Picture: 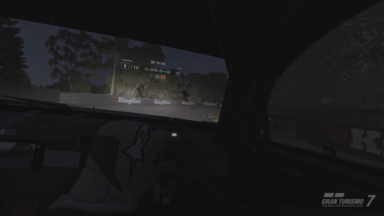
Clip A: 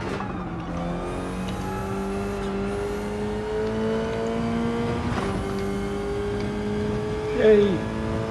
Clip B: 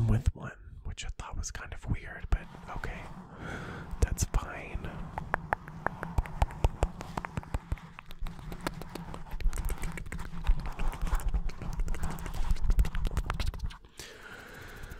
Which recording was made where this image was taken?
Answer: A